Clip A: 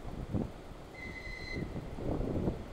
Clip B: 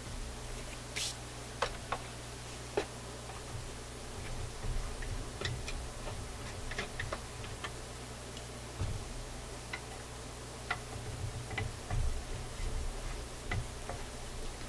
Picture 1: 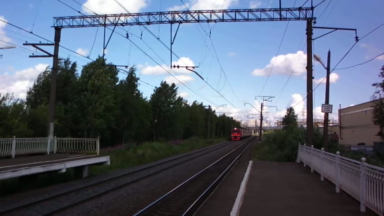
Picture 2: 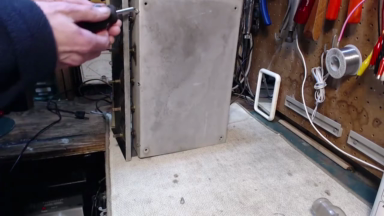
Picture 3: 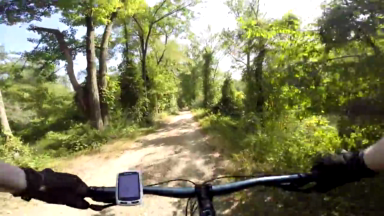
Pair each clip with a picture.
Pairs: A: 1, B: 2